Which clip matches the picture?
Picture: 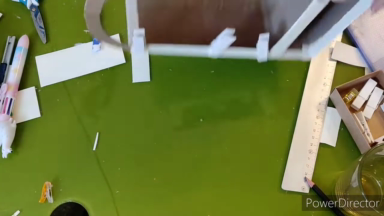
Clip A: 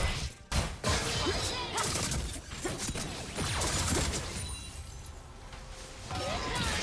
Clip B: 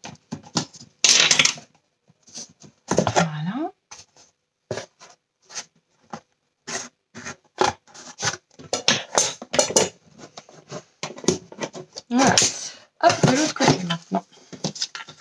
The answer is B